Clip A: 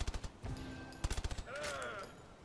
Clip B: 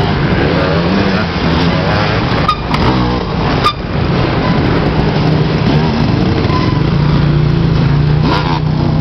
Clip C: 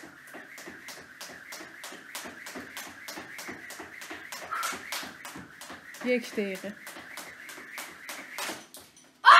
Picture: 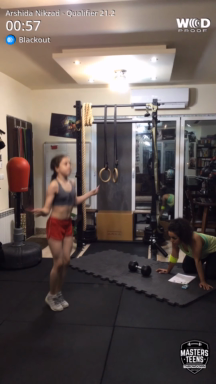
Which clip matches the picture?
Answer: C